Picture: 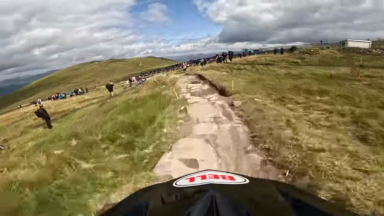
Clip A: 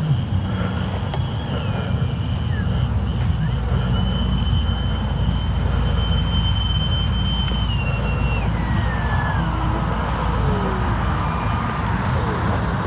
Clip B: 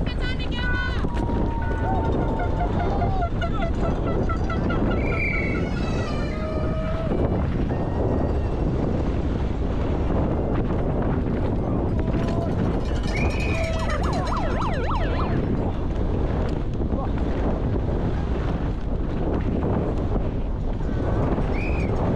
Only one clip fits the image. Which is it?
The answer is B